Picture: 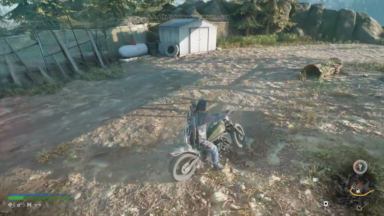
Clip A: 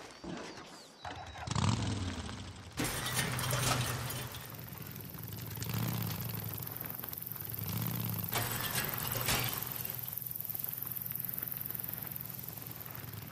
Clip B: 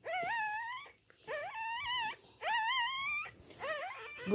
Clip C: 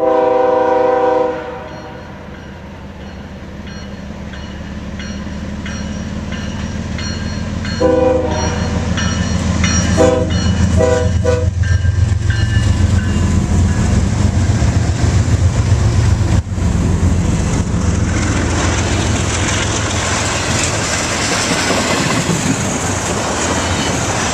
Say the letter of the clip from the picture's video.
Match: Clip A